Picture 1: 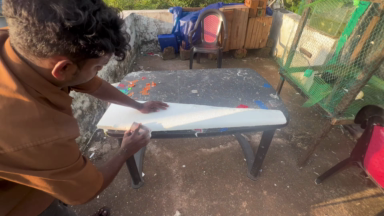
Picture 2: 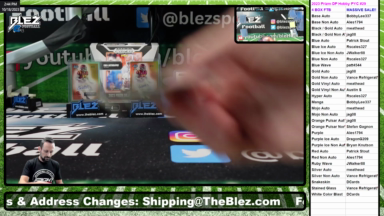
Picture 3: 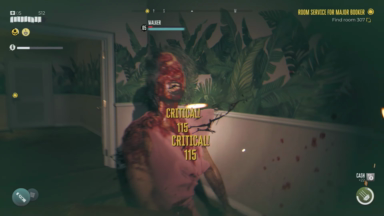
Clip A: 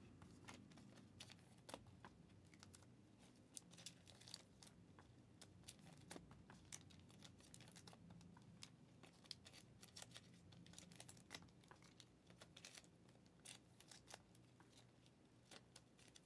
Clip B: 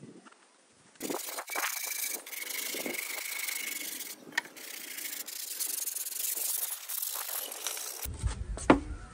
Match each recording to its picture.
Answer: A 2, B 1